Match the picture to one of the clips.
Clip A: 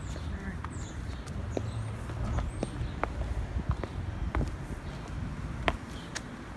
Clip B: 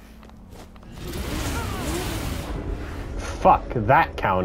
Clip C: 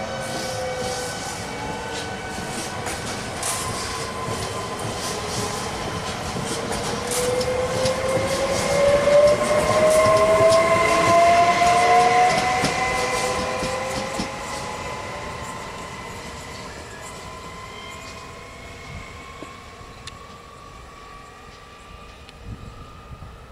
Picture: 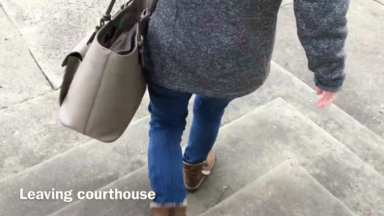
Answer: A